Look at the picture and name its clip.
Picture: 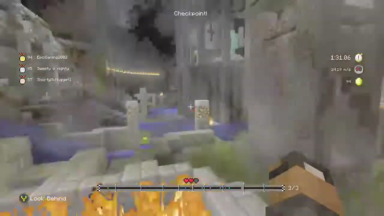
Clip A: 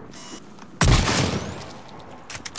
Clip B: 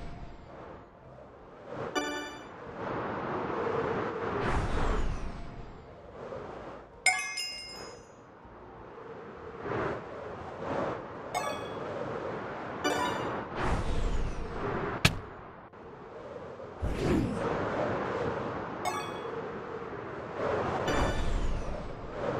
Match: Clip B